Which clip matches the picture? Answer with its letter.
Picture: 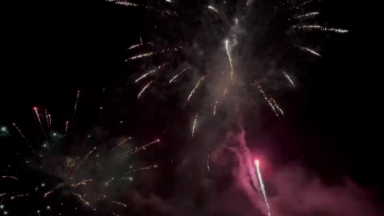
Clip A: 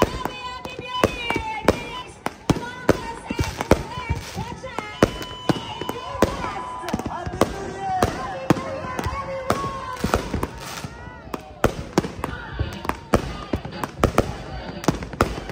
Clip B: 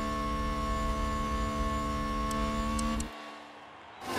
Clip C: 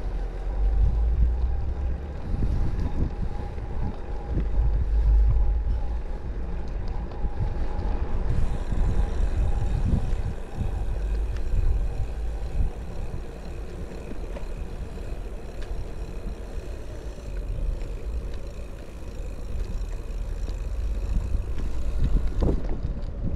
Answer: A